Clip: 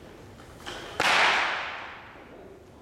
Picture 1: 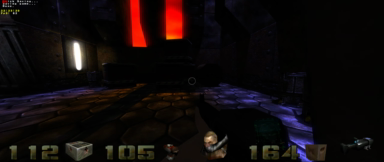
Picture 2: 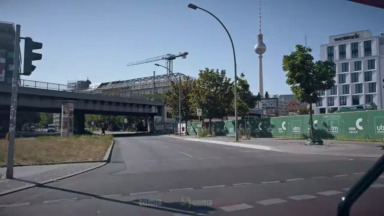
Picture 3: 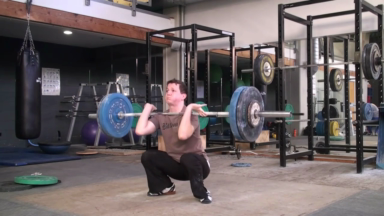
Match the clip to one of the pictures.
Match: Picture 3